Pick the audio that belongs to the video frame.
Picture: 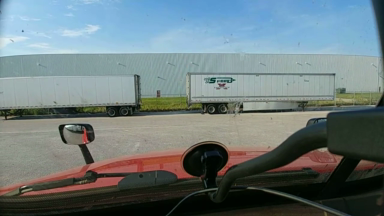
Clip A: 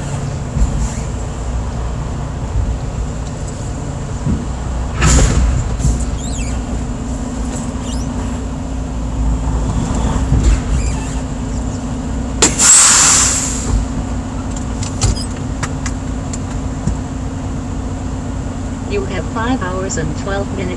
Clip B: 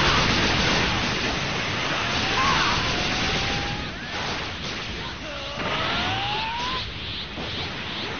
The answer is A